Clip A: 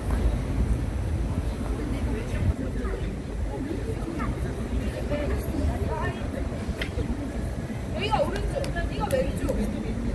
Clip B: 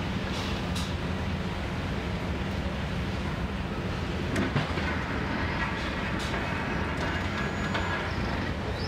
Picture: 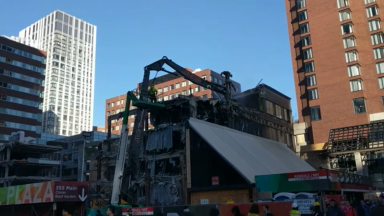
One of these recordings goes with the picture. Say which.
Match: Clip B